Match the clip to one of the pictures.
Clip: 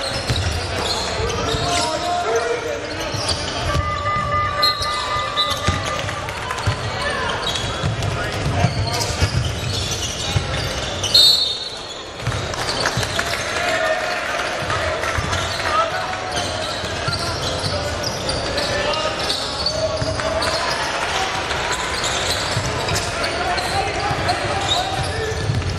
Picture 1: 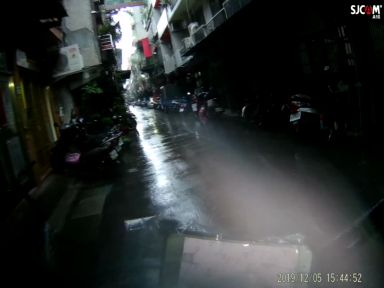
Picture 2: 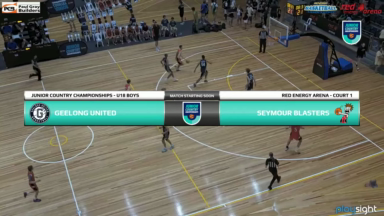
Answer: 2